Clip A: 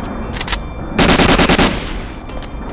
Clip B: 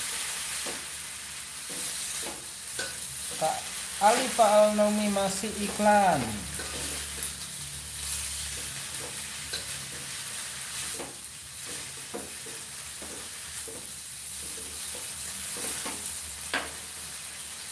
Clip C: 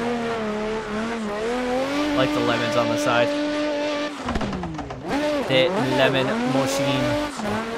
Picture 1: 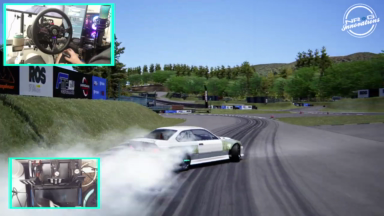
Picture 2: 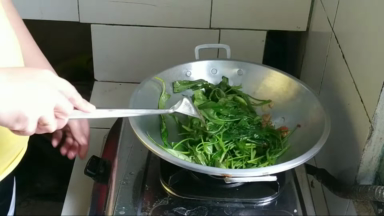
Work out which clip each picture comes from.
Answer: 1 C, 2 B